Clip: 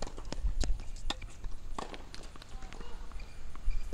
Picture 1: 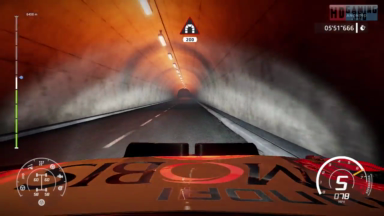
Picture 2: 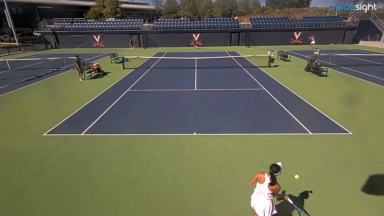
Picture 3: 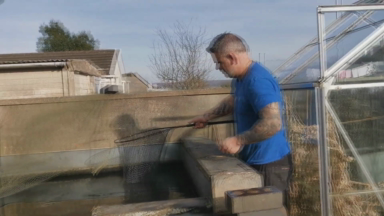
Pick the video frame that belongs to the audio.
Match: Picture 2